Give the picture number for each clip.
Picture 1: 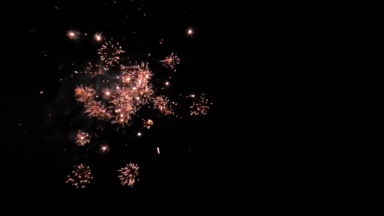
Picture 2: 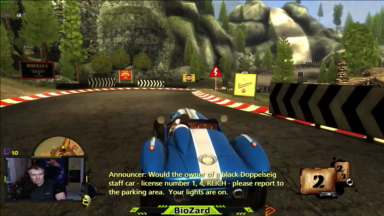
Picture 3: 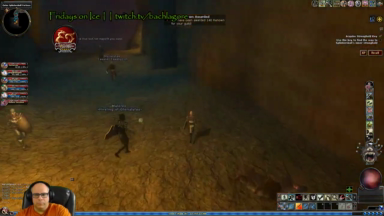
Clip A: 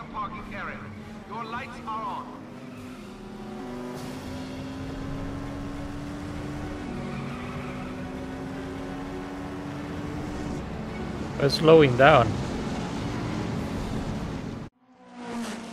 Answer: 2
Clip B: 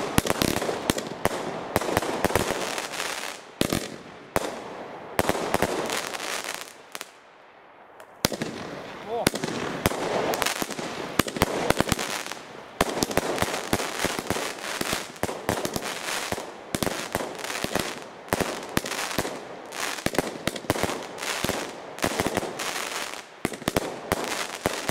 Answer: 1